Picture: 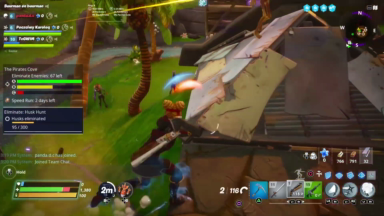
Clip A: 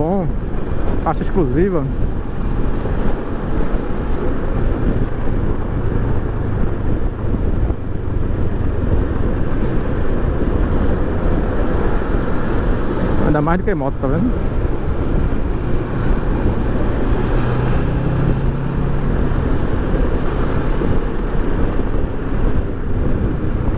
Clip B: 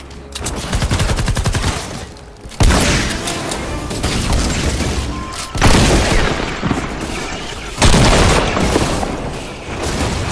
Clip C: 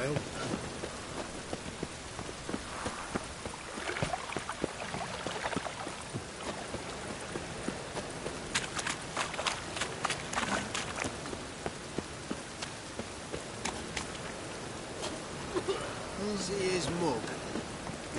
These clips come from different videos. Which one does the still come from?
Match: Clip B